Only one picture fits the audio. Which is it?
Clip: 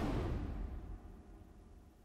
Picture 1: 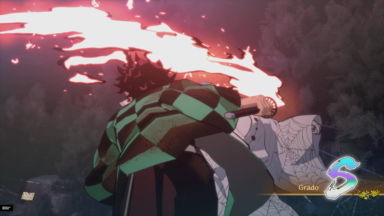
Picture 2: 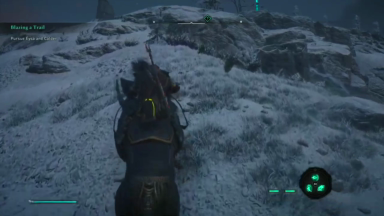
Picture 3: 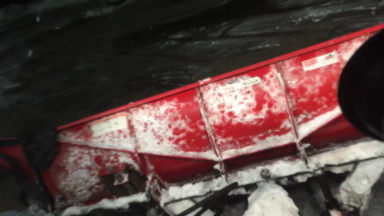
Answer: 1